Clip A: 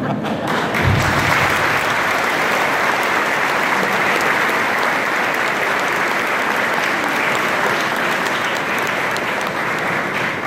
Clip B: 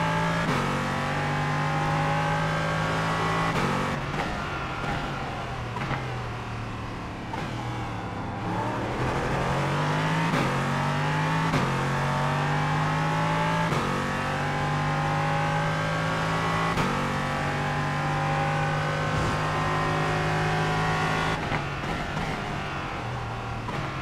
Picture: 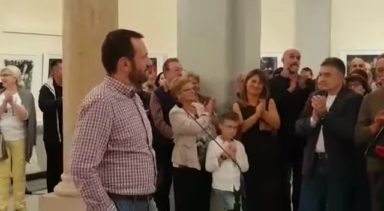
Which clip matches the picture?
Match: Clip A